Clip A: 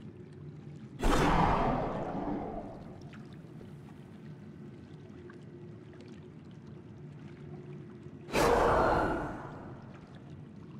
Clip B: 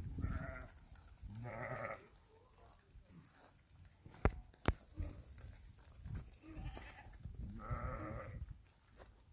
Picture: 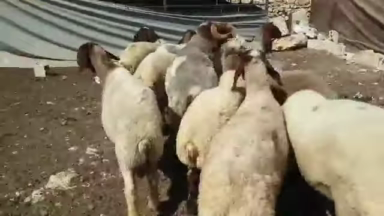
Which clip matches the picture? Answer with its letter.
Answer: B